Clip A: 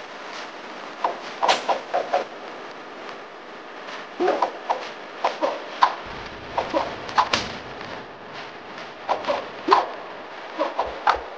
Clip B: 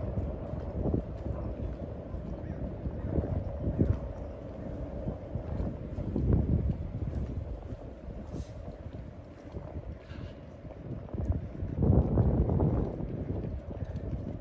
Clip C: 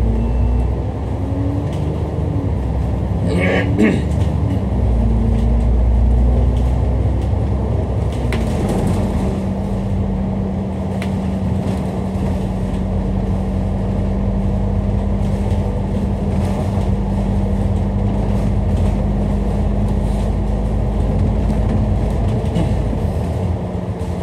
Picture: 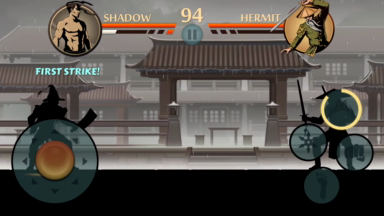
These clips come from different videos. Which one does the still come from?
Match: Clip A